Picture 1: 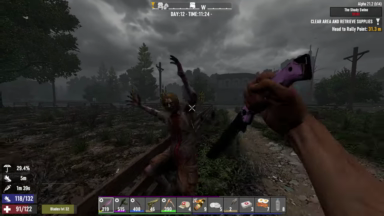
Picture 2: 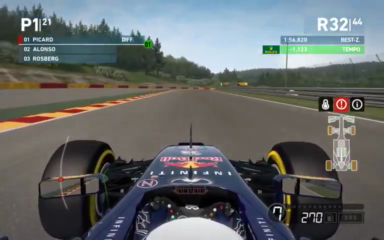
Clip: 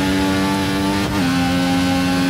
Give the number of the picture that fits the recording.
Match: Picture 2